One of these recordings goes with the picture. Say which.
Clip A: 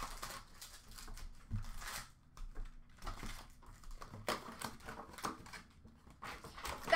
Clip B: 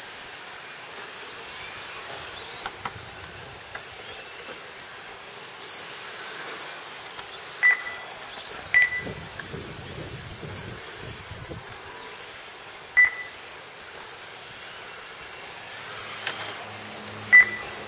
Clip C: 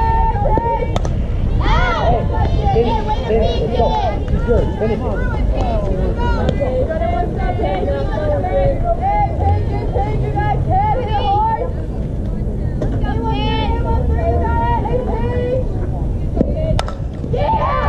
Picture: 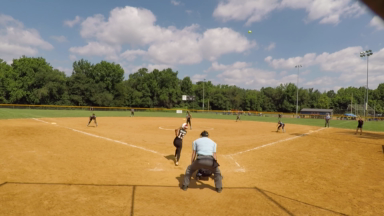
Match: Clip C